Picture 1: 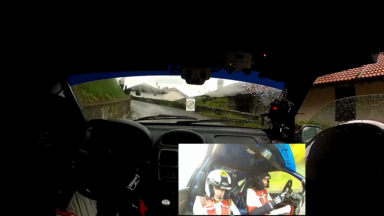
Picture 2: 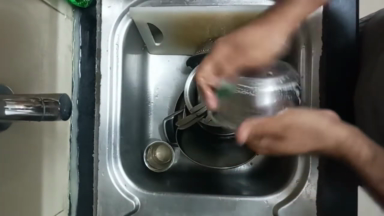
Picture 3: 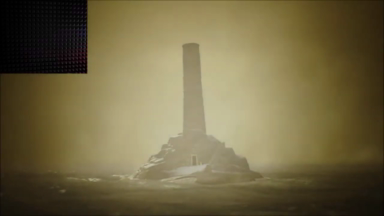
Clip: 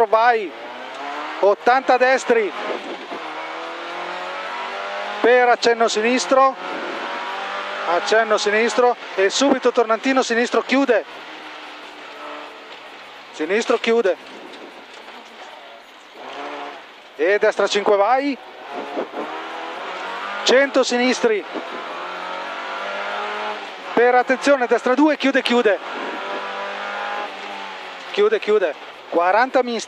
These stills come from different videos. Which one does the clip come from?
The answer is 1